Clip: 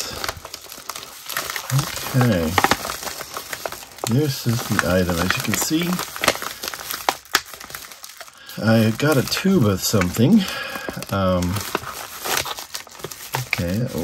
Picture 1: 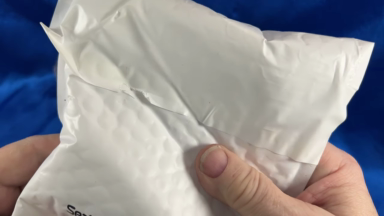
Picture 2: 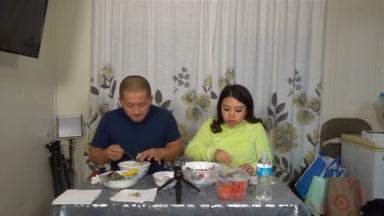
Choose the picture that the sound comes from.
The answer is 1